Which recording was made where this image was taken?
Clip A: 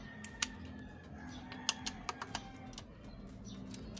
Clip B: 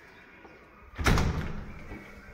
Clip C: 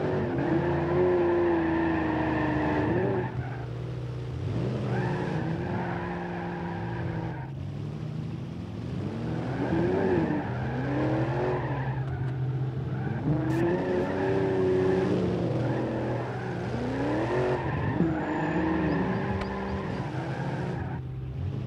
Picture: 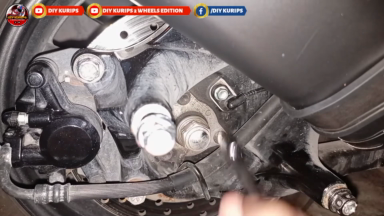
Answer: A